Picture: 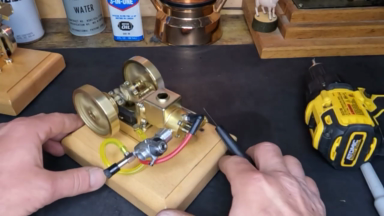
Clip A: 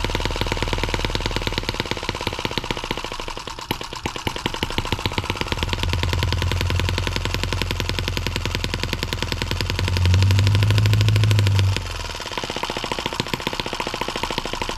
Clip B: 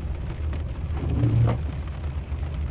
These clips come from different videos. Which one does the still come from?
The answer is A